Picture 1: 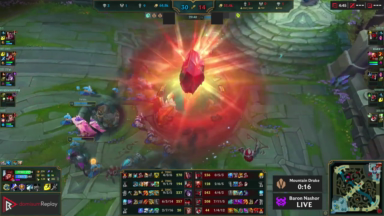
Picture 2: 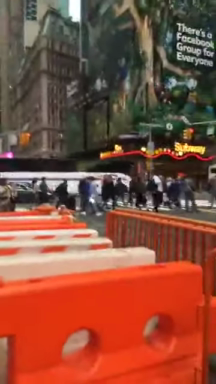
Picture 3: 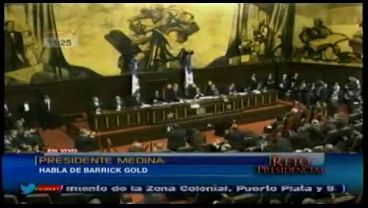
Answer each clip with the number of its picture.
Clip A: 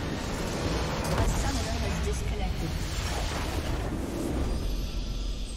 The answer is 1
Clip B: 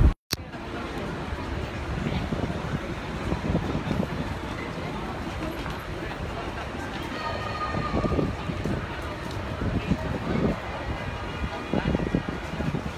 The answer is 2